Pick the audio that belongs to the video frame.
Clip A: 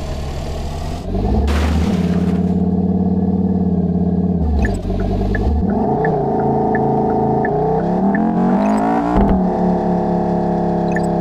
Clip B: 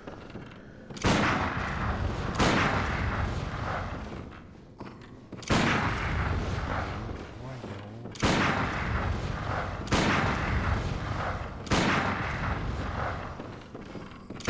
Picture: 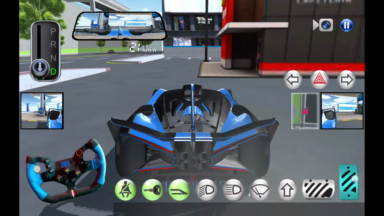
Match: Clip A